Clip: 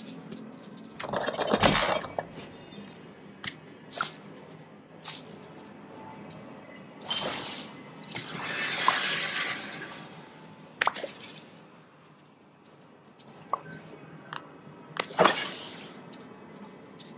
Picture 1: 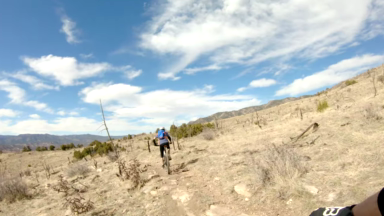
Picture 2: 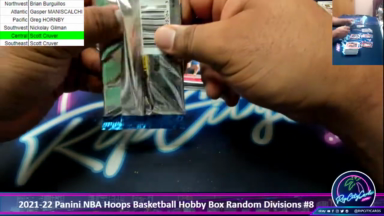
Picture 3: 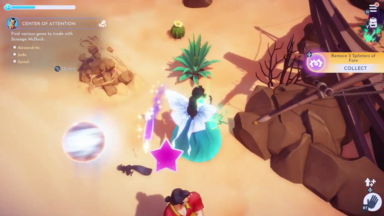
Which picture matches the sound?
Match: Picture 3